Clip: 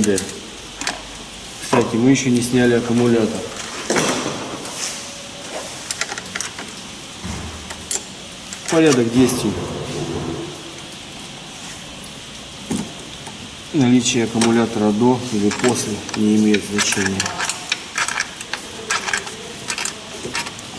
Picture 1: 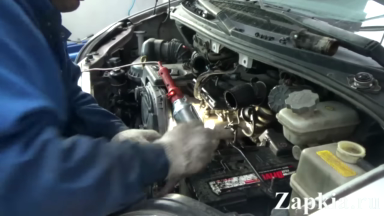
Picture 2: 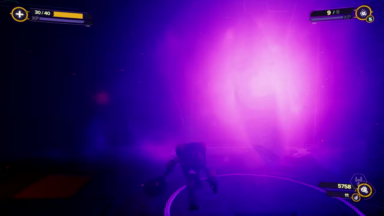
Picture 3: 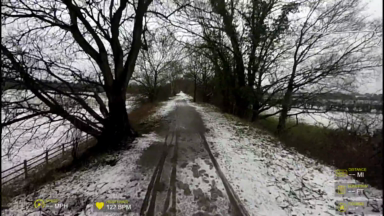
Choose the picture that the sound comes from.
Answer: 1